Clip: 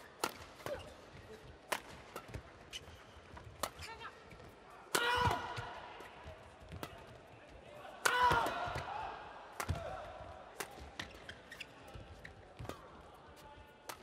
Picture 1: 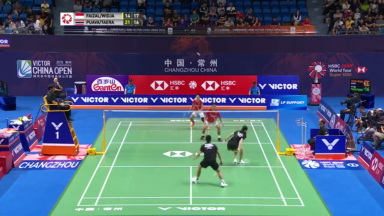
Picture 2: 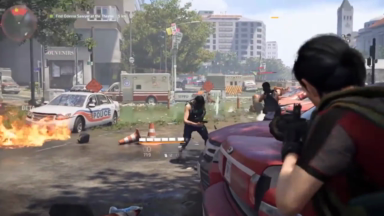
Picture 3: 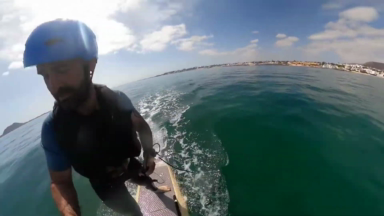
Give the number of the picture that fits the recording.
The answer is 1